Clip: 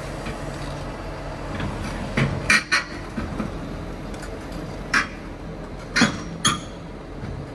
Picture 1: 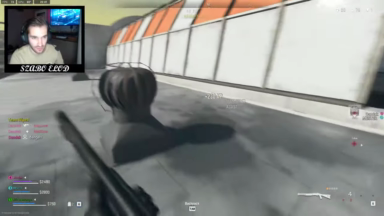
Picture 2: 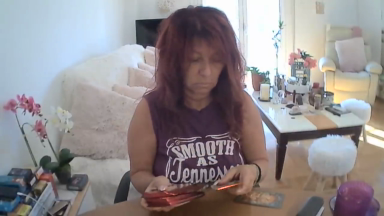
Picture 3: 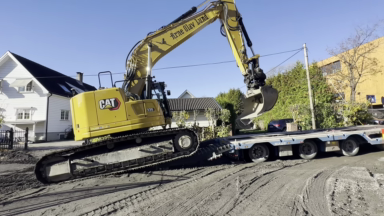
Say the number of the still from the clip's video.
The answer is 3